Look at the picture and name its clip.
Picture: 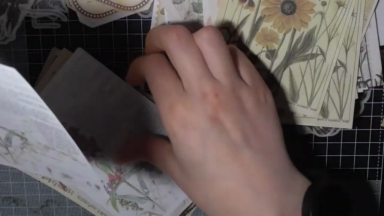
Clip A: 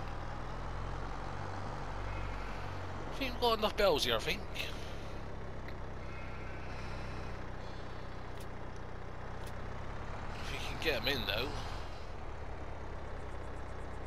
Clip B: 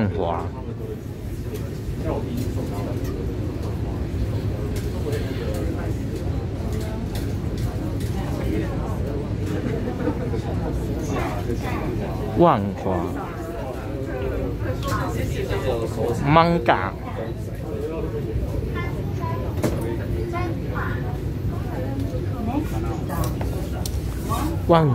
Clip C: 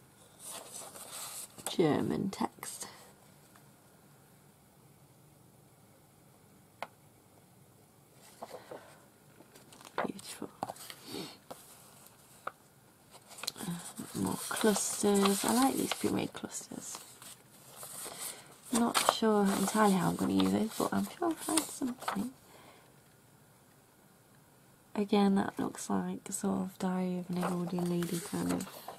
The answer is C